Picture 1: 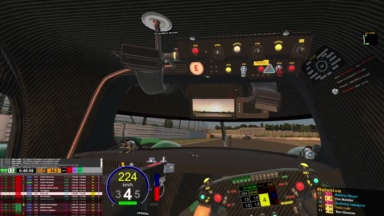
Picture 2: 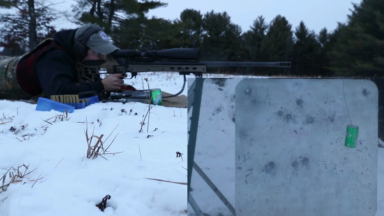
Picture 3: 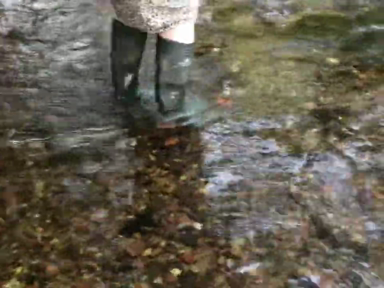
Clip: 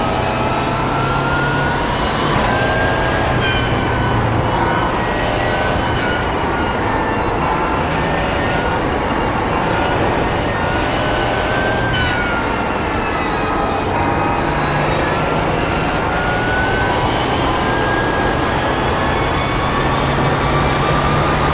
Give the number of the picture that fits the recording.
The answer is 1